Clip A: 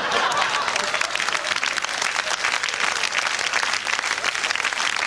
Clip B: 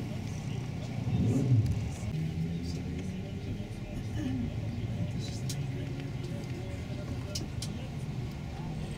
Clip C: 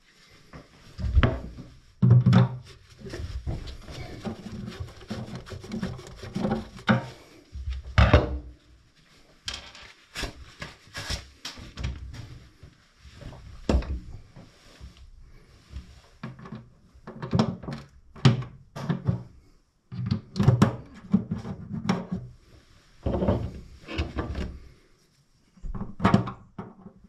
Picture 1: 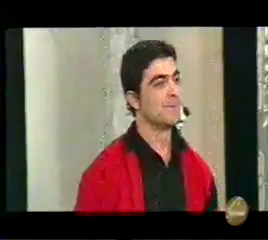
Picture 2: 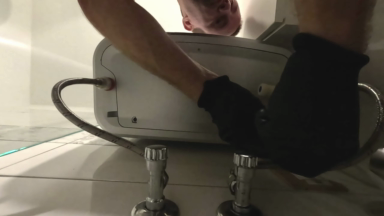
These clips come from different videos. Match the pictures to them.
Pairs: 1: A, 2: C